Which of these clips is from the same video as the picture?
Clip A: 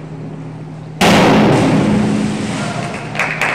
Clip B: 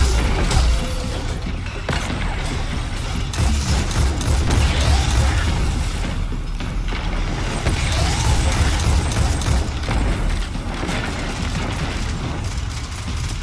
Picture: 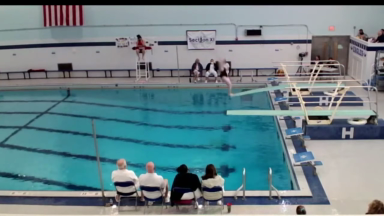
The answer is A